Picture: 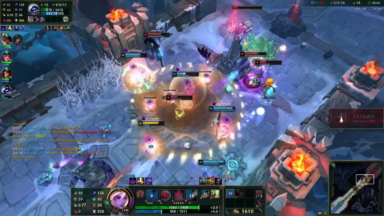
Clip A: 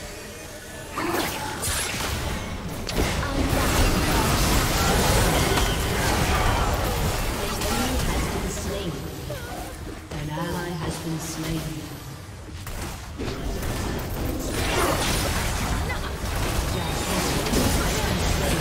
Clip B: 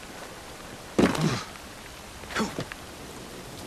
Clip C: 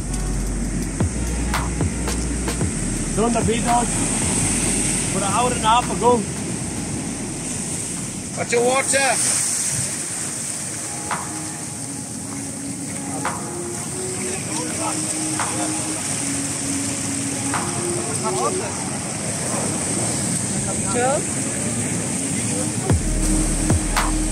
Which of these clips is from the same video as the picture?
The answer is A